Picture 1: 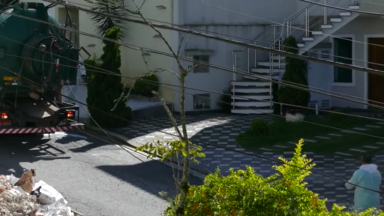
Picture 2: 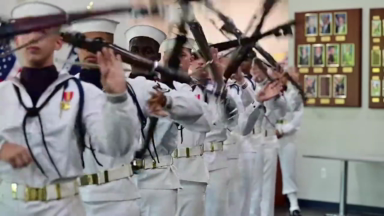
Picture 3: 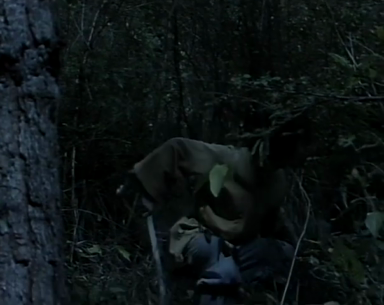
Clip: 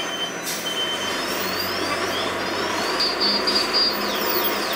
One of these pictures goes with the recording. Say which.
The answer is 1